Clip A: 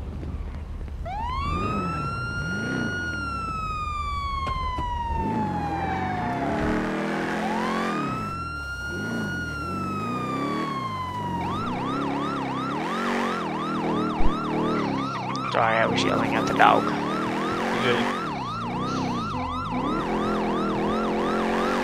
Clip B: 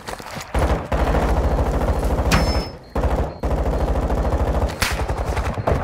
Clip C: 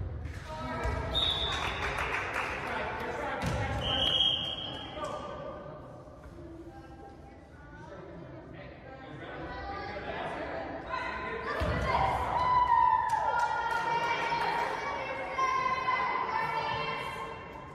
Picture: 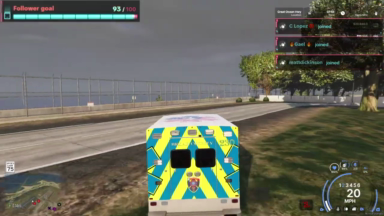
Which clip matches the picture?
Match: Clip A